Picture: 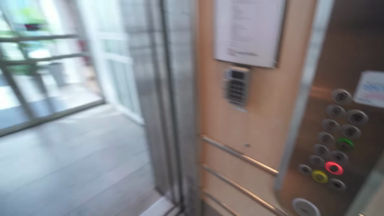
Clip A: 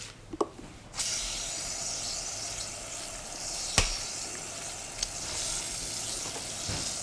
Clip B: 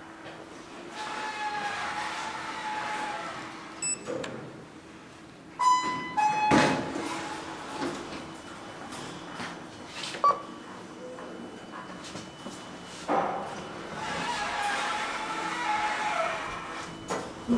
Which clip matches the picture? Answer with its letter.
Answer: B